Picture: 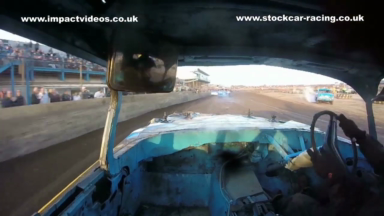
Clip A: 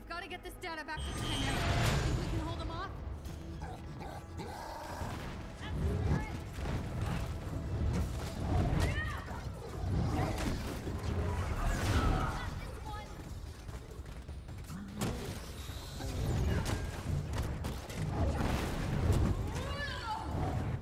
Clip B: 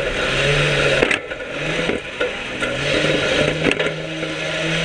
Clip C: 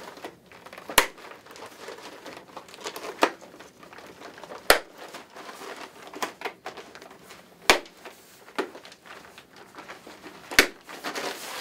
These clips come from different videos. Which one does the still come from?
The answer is B